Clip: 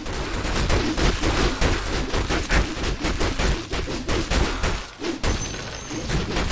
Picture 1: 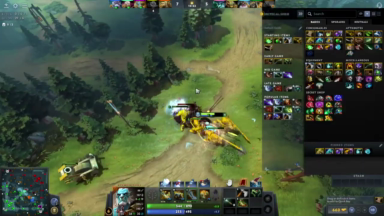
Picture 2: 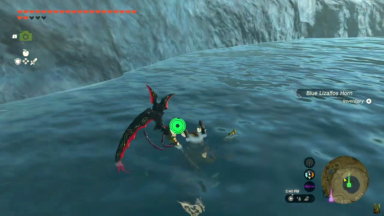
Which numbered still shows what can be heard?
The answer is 1